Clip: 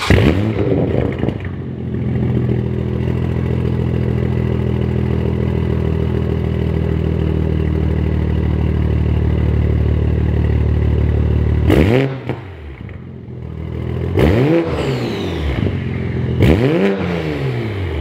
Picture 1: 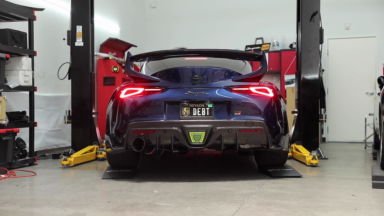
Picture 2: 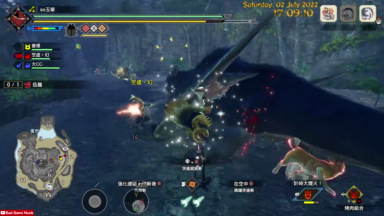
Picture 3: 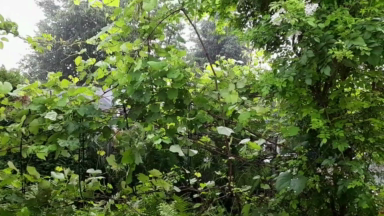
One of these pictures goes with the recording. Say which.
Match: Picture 1